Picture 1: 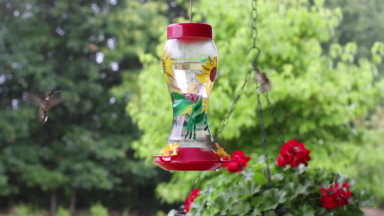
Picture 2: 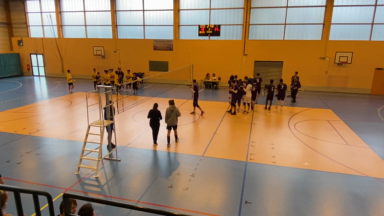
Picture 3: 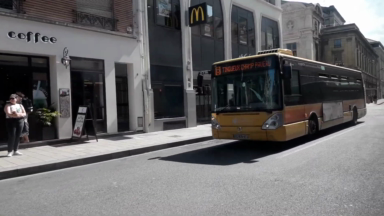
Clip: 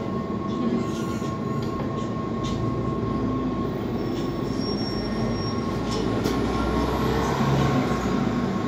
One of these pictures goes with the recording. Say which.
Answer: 3